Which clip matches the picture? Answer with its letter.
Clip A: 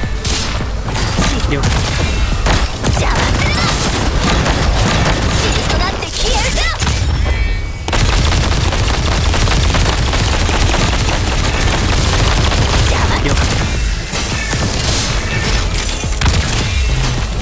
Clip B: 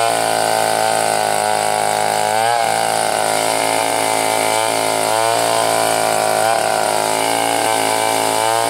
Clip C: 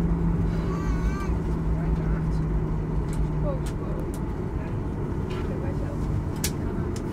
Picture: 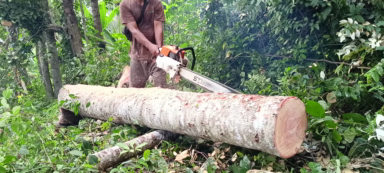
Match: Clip B